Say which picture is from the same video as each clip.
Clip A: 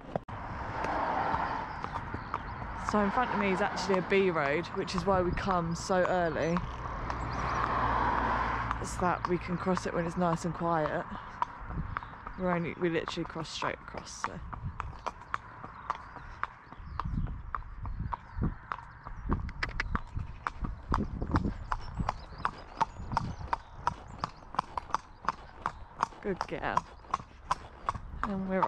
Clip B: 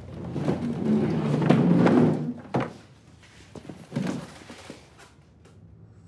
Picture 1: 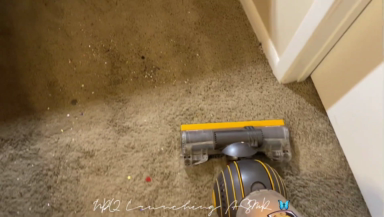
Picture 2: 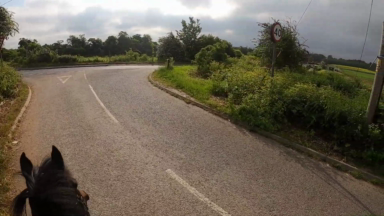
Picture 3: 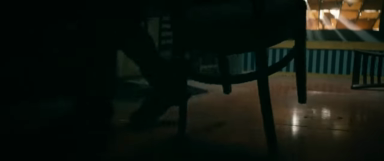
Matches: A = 2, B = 3